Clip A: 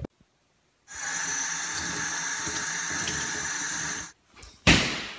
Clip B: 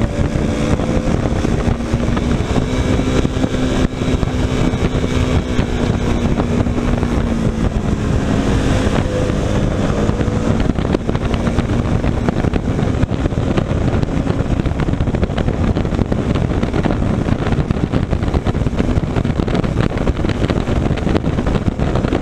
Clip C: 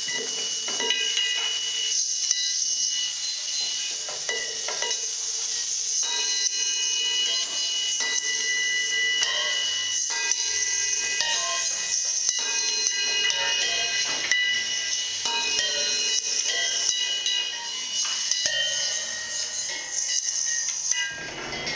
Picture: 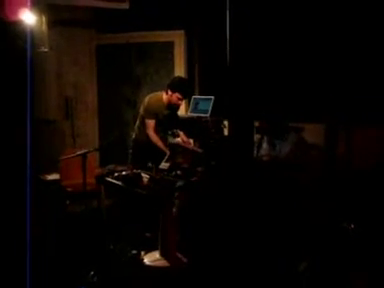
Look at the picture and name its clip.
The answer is C